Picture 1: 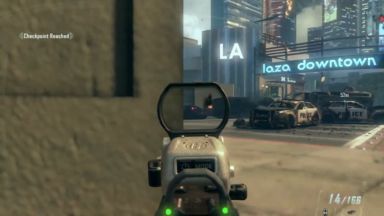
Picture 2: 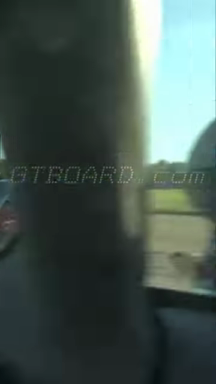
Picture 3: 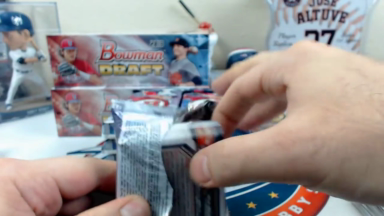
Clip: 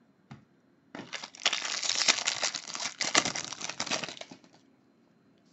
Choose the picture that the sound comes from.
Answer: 3